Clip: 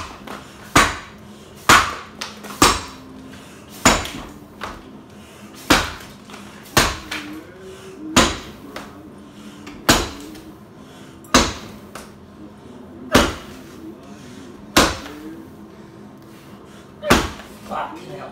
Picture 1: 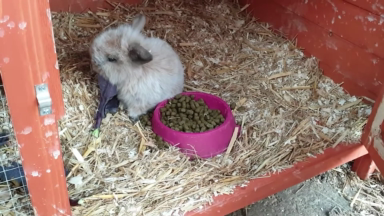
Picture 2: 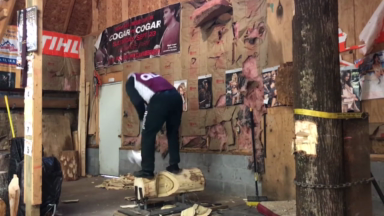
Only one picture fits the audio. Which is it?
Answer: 2